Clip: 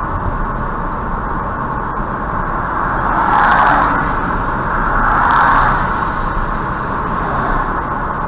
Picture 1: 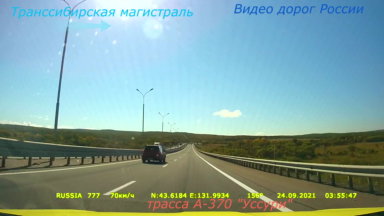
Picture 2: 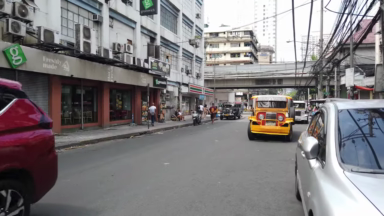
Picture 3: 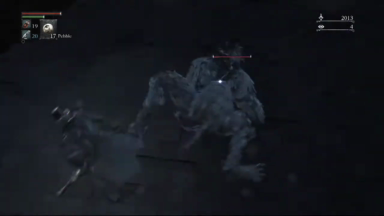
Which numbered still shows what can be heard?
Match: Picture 1